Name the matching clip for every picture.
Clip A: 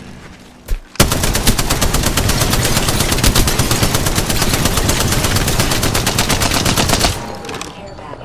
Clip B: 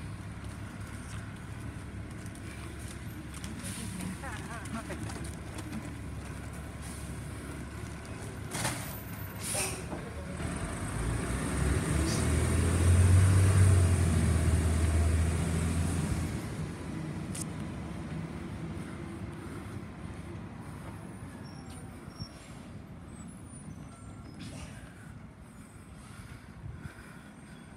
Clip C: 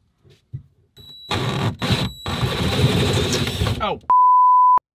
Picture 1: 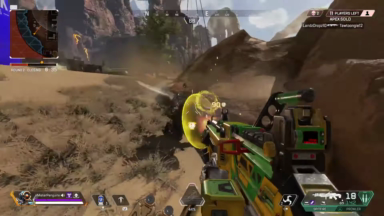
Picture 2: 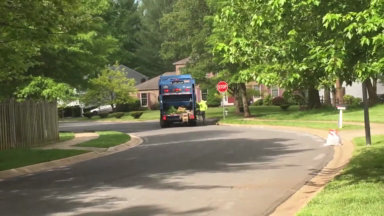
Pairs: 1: A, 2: B